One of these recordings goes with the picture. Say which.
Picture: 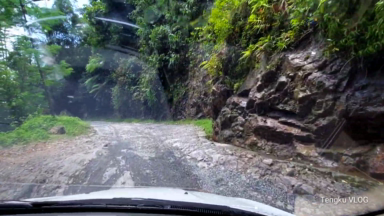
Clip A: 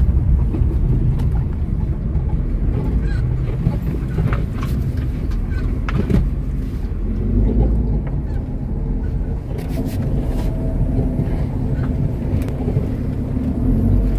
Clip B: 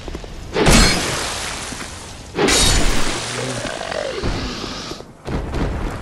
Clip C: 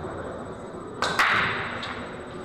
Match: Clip A